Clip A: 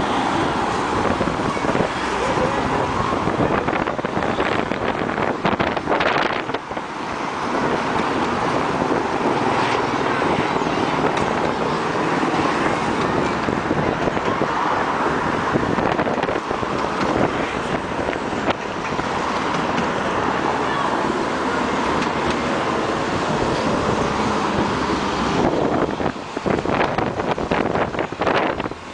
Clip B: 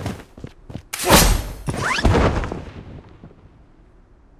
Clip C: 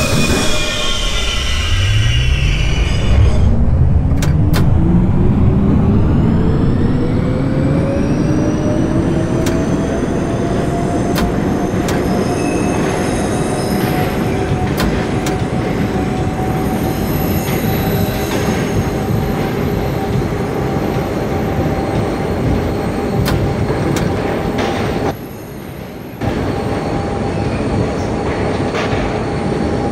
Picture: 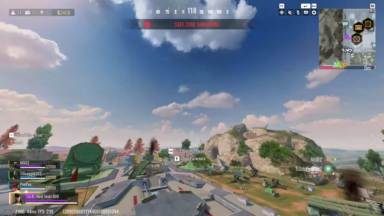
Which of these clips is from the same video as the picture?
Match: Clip B